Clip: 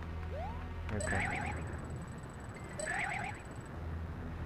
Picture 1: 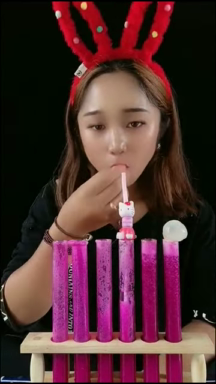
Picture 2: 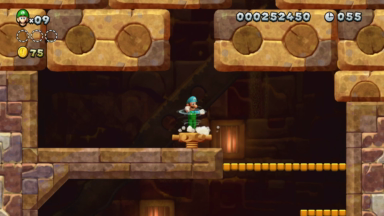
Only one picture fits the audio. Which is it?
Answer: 2